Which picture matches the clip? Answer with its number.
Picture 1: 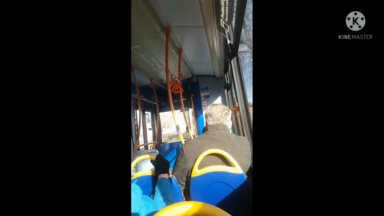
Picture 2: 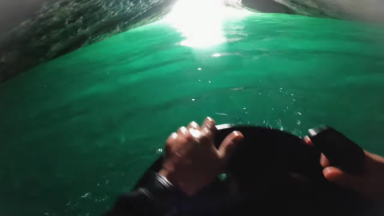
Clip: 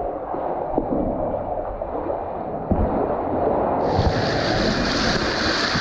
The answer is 2